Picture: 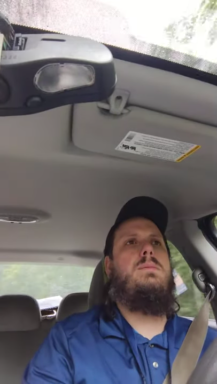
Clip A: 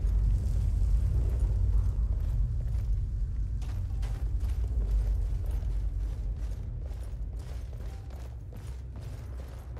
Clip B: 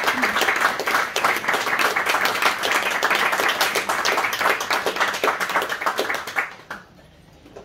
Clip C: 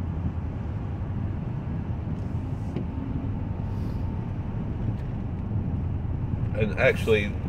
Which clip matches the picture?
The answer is C